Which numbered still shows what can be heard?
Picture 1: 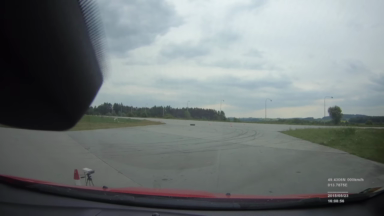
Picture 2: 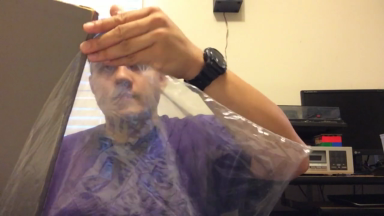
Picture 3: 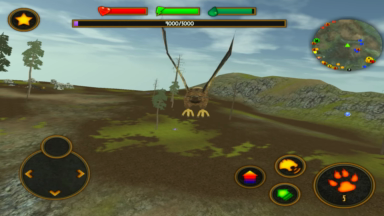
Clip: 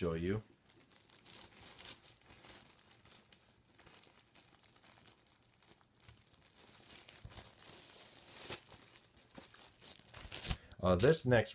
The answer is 2